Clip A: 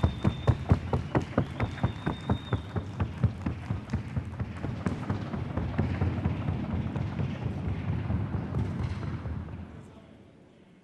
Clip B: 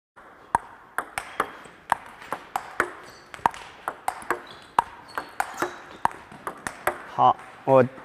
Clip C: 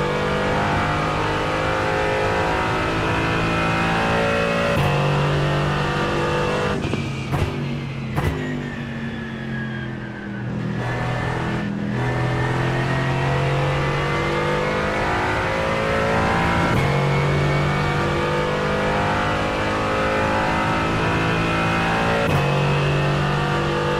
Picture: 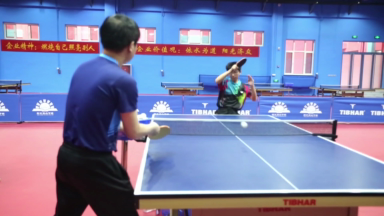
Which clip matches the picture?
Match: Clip B